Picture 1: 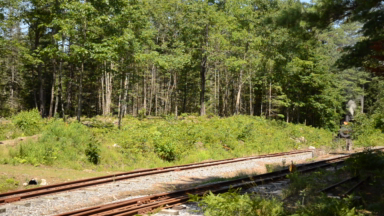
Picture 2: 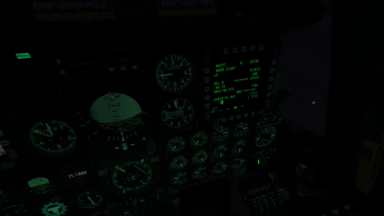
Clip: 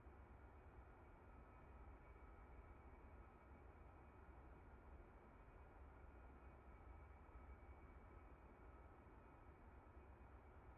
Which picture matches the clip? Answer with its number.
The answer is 2